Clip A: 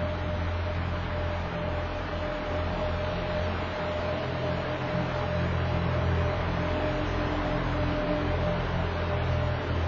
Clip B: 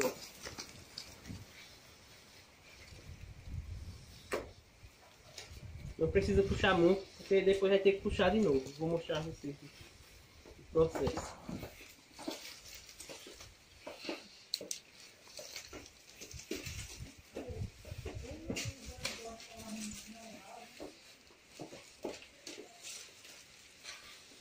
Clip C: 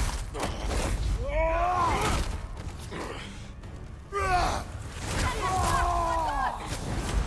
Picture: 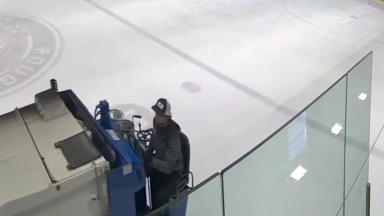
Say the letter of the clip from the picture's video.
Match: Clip A